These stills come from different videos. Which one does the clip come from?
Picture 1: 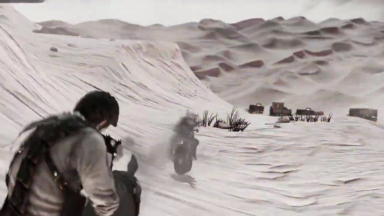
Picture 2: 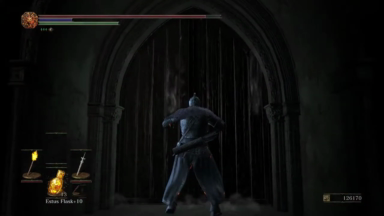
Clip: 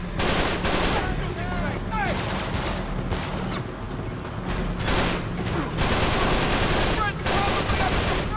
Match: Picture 1